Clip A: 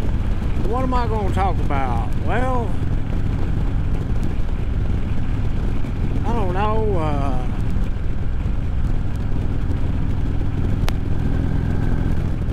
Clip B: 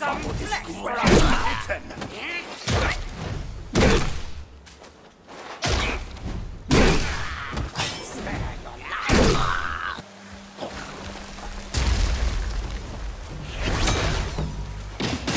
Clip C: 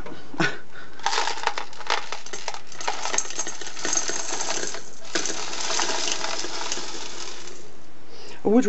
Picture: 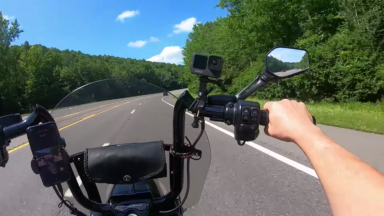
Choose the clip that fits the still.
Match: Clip A